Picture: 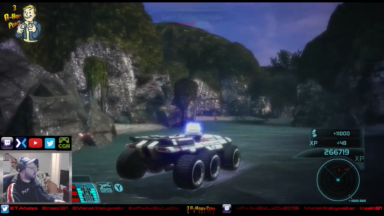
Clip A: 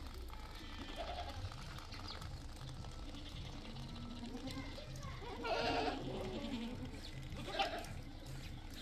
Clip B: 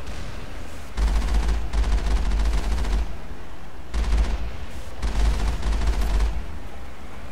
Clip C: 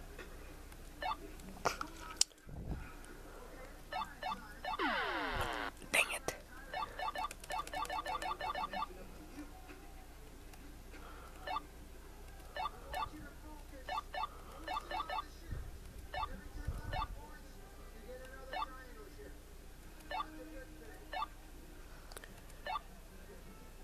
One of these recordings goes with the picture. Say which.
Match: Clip B